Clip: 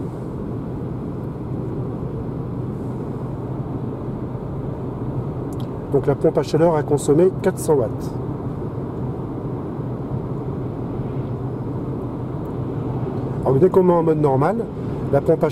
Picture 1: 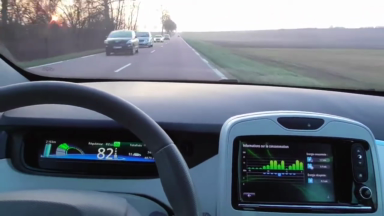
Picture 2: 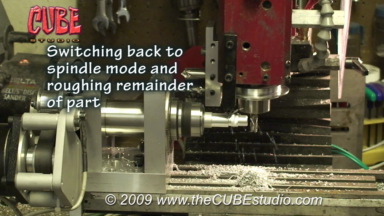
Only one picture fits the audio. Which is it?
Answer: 1